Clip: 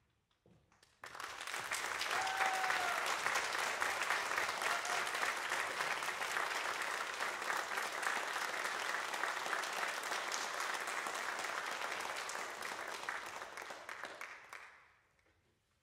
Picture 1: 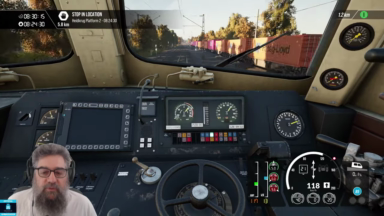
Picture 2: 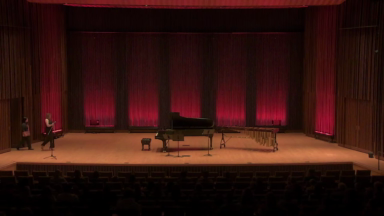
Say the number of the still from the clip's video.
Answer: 2